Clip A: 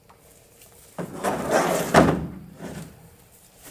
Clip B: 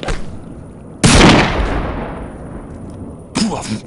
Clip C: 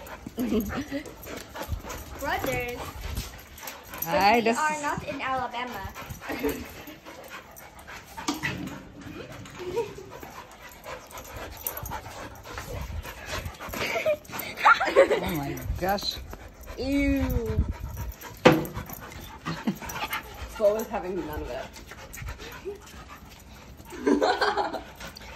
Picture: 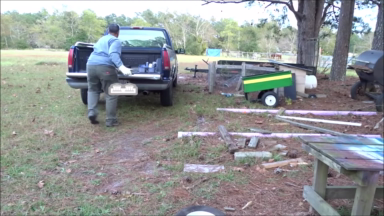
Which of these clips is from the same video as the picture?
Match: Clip A